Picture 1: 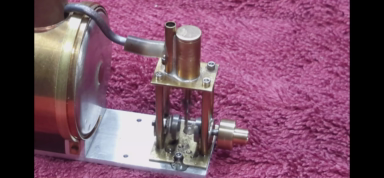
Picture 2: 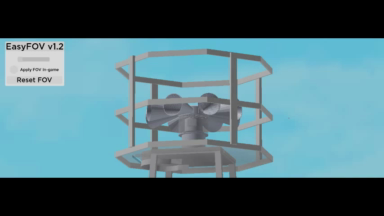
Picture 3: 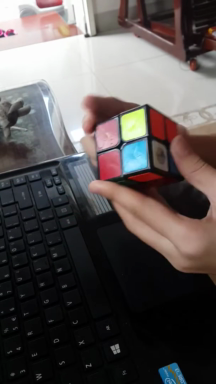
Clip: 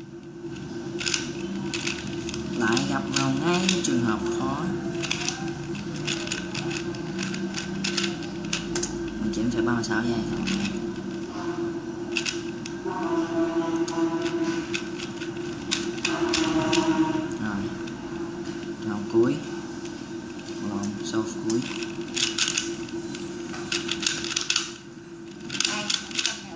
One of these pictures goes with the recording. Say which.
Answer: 3